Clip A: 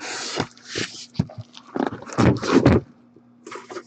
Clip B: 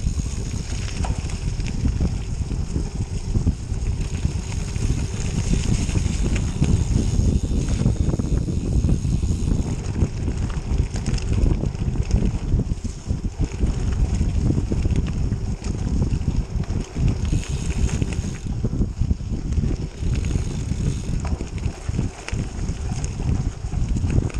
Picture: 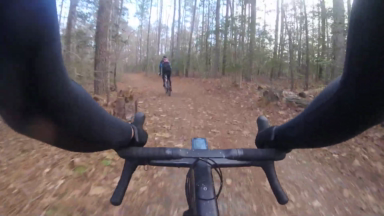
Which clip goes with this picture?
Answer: B